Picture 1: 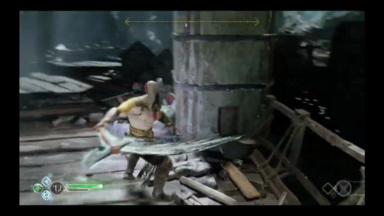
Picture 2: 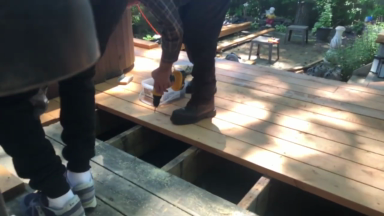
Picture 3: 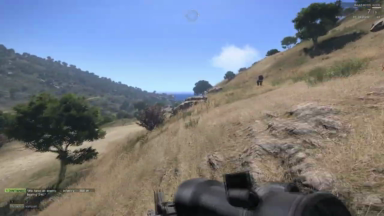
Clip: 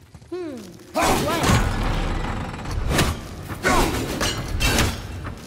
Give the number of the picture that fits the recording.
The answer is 1